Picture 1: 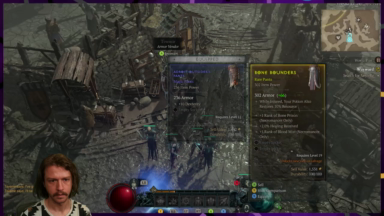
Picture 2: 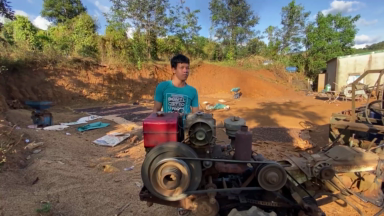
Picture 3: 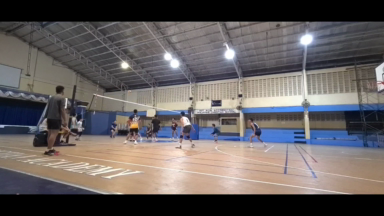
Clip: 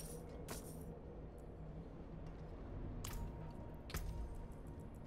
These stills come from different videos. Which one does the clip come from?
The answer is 1